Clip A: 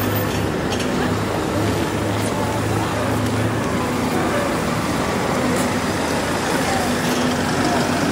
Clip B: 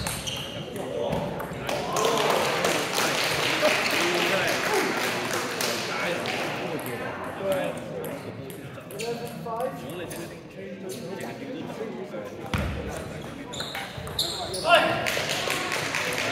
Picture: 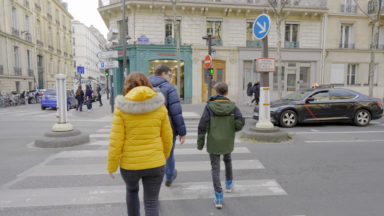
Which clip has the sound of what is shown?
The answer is A